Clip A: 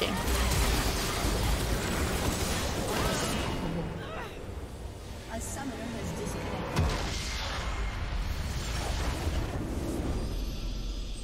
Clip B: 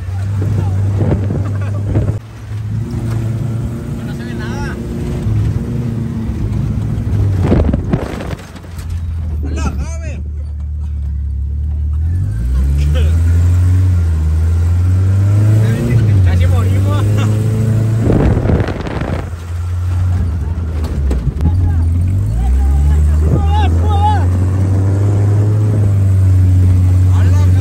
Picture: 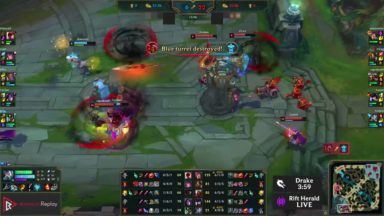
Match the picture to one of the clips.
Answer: A